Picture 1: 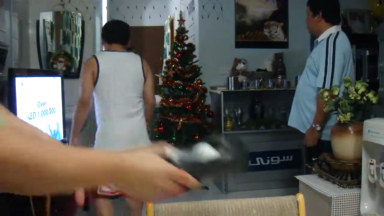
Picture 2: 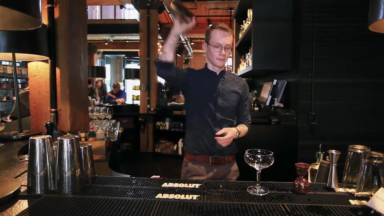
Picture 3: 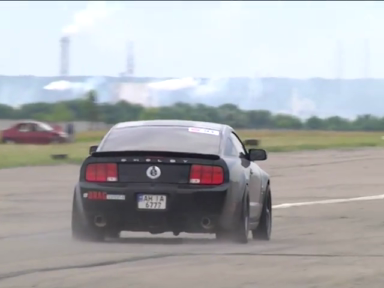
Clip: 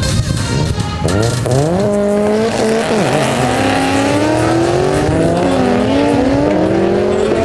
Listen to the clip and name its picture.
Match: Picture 3